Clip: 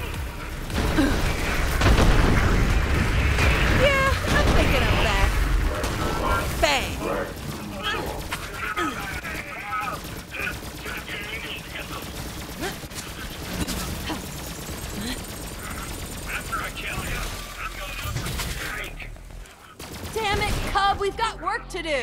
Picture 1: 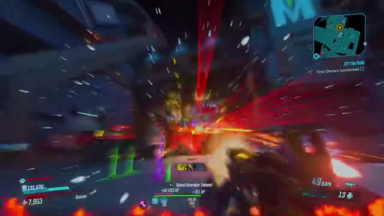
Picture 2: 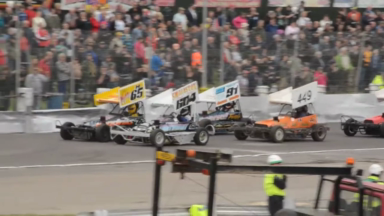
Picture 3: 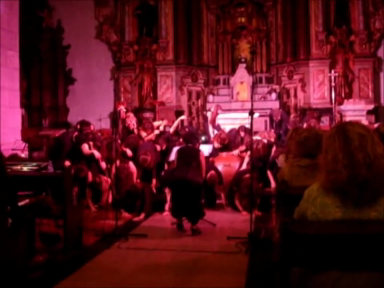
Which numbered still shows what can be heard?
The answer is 1